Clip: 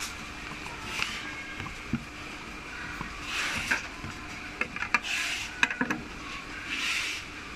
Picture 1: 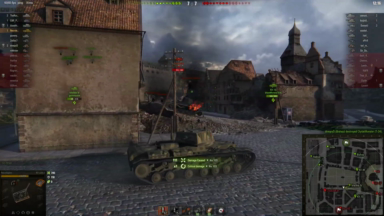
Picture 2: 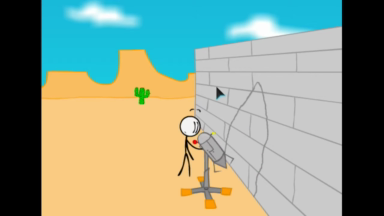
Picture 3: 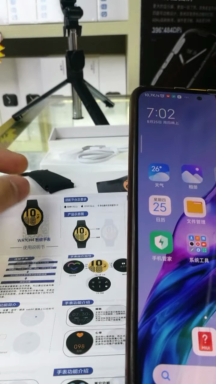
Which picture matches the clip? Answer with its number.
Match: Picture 3